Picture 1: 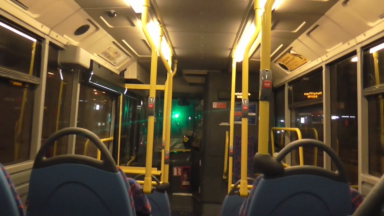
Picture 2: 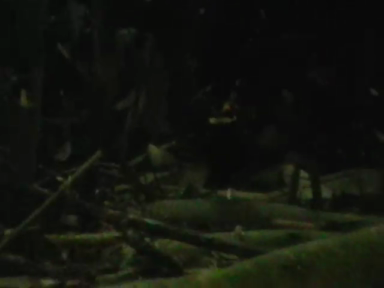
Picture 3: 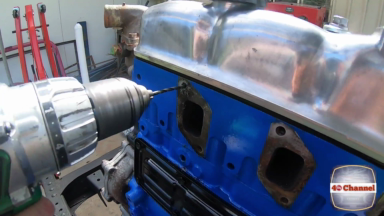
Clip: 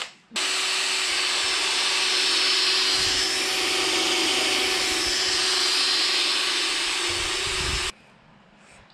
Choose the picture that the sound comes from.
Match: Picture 3